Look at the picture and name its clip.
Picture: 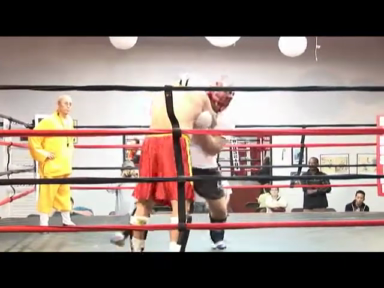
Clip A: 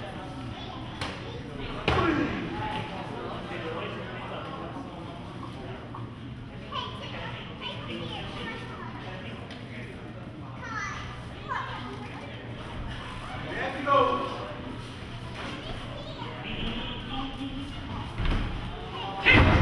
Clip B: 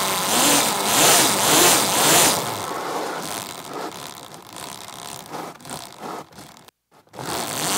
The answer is A